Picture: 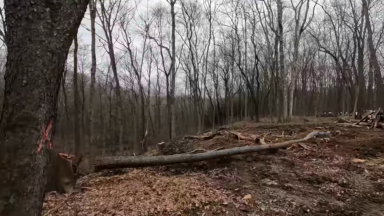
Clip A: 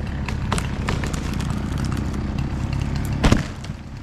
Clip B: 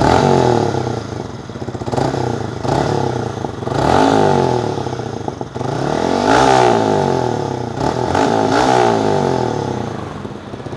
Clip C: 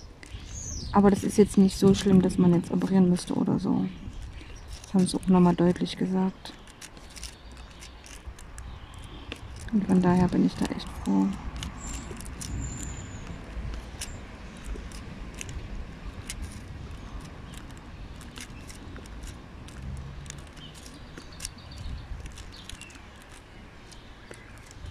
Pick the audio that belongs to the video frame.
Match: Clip A